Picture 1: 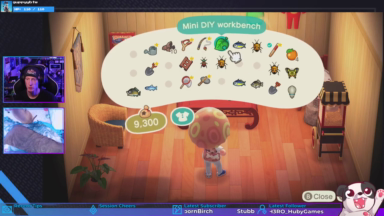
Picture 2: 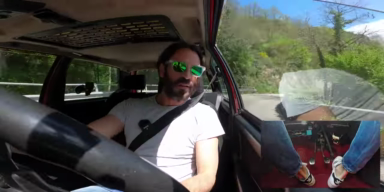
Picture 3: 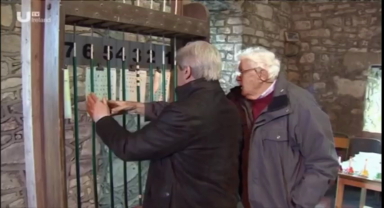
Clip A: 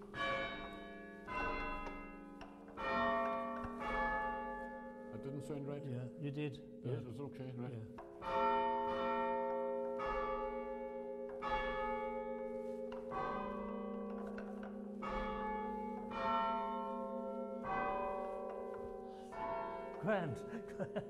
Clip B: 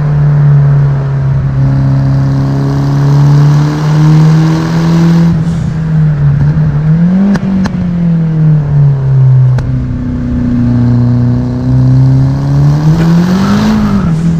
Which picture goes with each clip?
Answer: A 3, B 2